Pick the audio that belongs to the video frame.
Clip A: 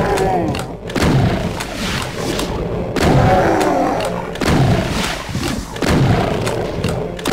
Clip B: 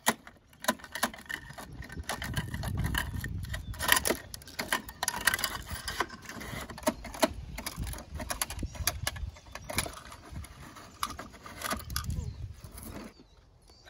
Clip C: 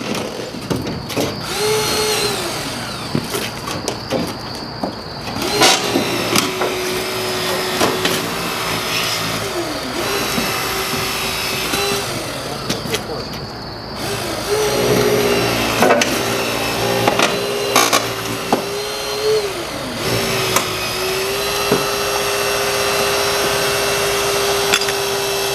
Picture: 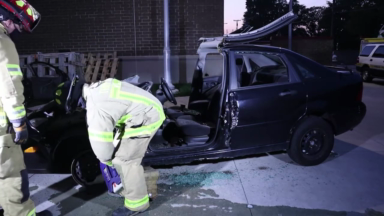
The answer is C